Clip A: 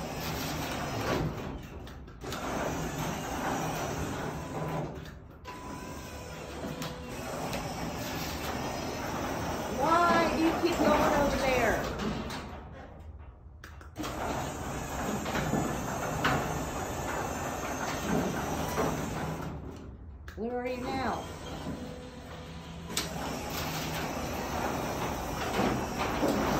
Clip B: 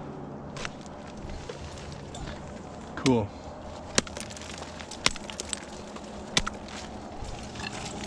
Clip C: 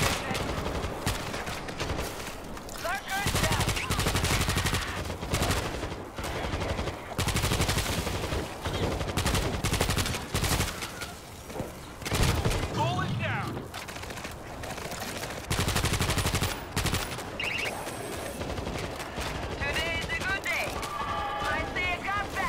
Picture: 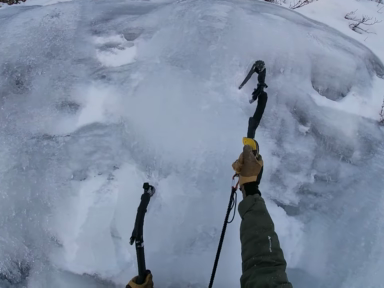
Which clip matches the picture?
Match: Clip B